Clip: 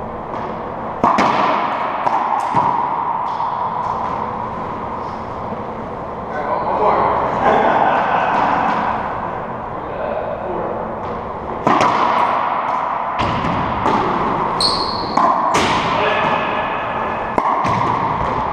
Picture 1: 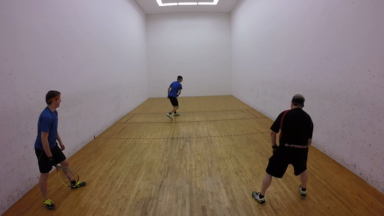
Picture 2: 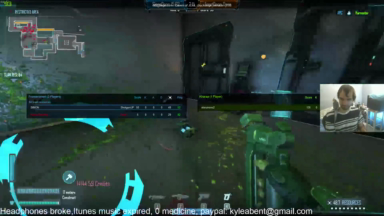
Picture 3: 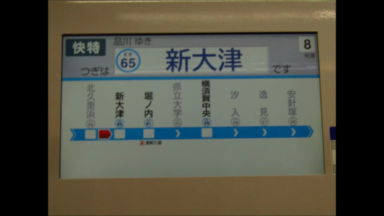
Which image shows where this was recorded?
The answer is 1